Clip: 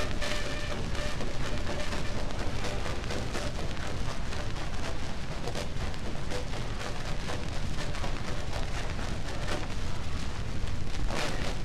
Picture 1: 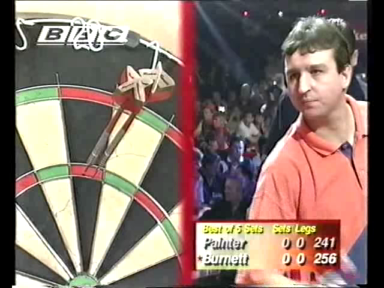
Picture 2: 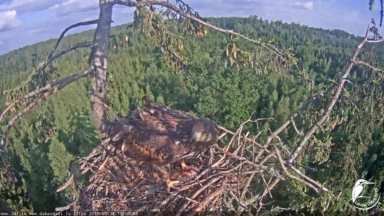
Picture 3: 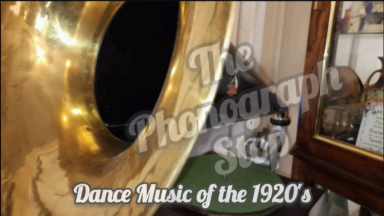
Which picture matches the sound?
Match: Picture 3